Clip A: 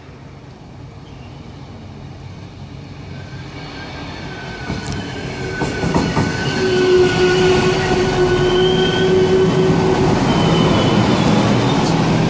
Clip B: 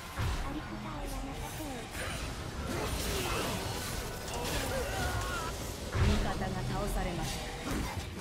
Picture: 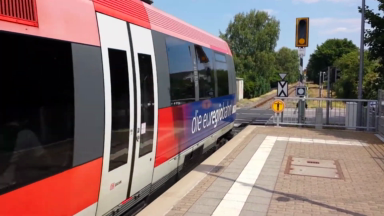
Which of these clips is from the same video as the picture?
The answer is A